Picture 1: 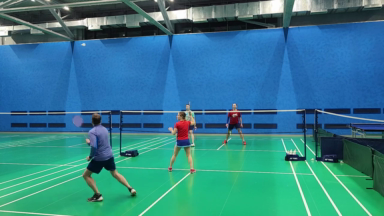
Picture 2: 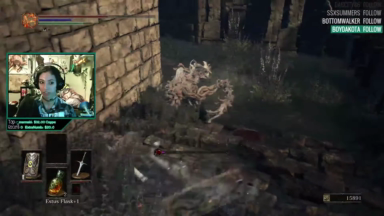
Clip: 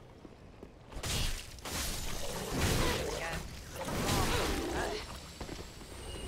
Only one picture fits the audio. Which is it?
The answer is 2